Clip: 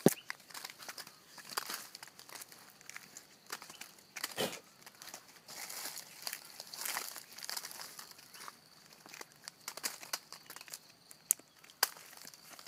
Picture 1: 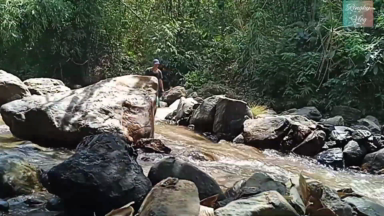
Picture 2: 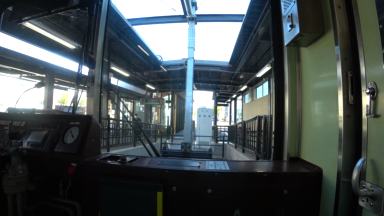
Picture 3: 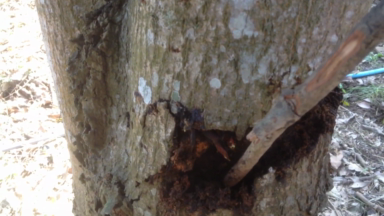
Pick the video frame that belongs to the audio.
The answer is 3